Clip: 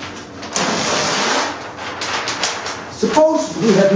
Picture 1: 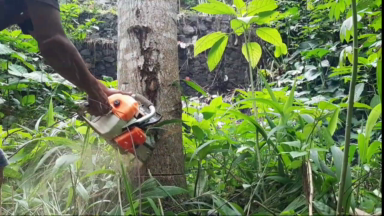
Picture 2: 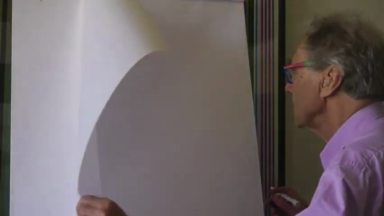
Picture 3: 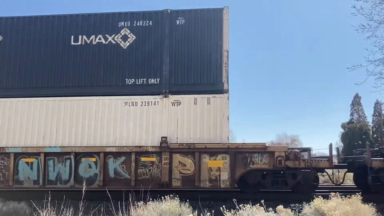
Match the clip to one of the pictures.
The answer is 2